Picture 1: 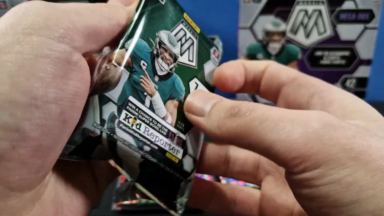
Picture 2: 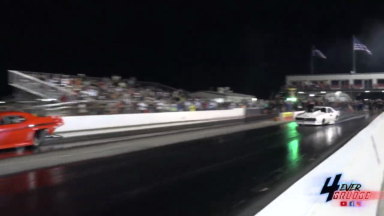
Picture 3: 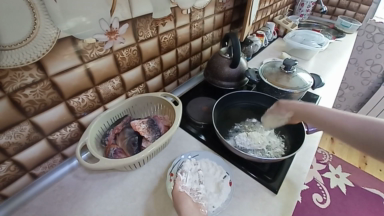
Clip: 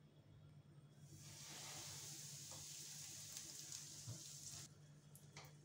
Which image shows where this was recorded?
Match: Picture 3